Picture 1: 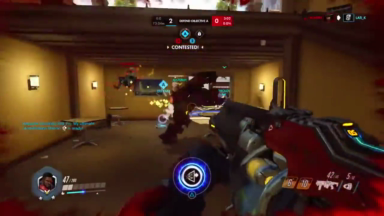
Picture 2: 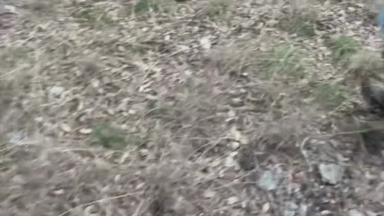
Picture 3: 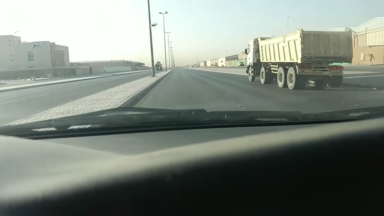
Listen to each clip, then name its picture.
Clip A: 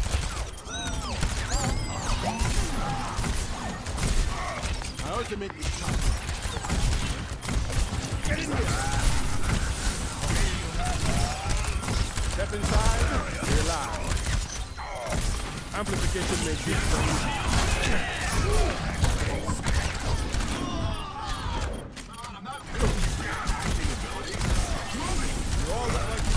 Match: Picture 1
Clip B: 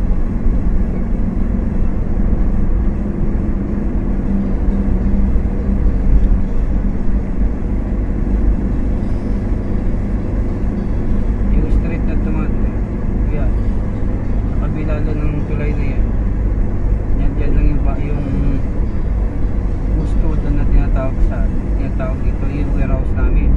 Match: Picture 3